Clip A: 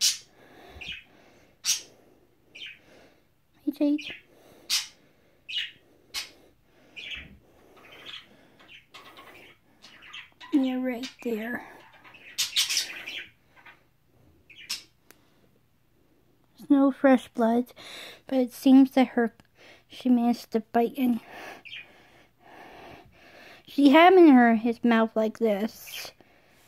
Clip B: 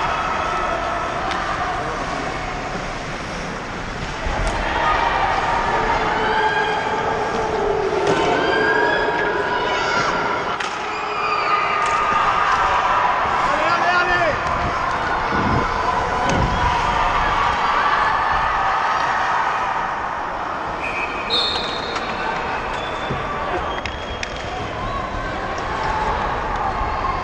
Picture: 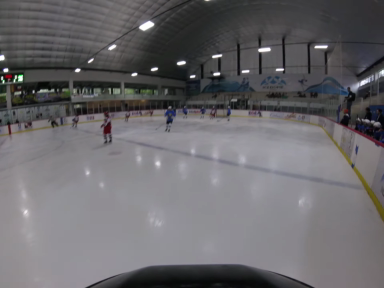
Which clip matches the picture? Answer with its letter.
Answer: B